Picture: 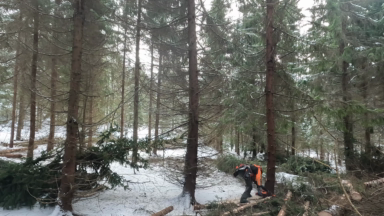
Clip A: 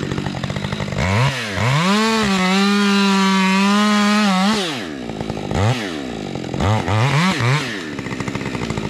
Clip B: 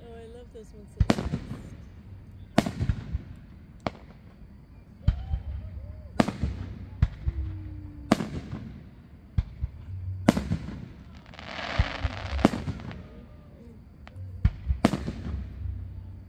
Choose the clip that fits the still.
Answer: A